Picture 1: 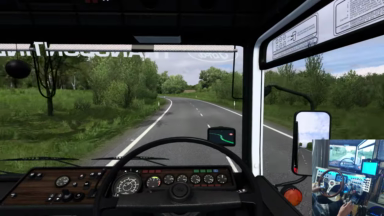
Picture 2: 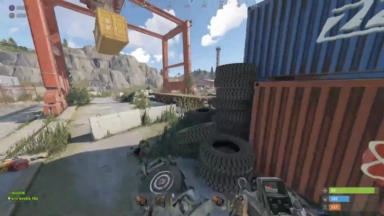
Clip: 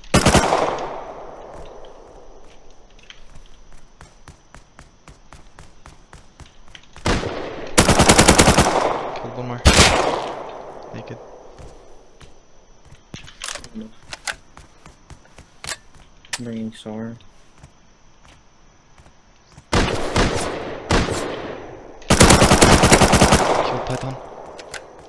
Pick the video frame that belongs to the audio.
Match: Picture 2